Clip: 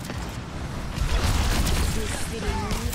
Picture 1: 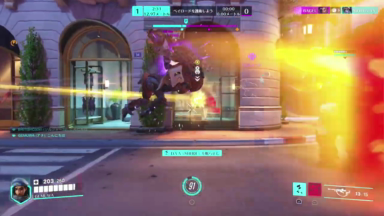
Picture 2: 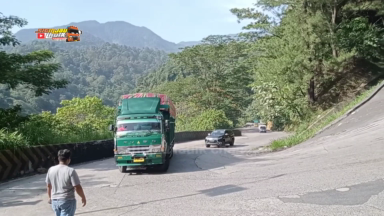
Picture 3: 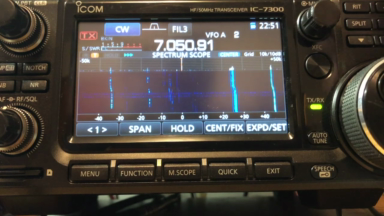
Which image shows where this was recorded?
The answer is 1